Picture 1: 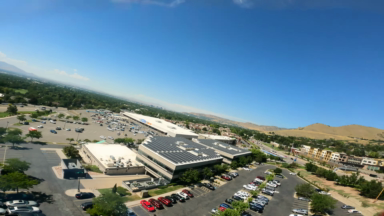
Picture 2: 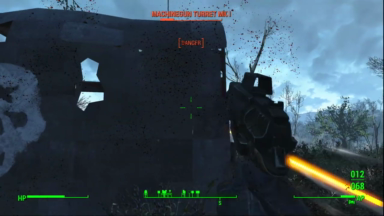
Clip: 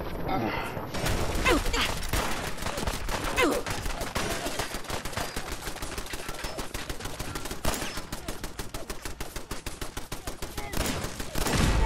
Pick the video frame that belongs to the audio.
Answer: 2